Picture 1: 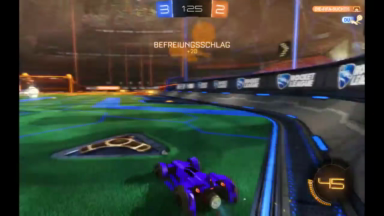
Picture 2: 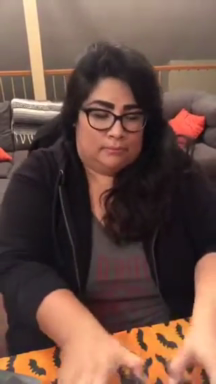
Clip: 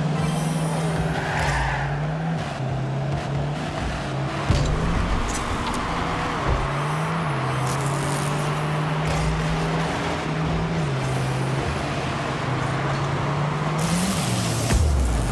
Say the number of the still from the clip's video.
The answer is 1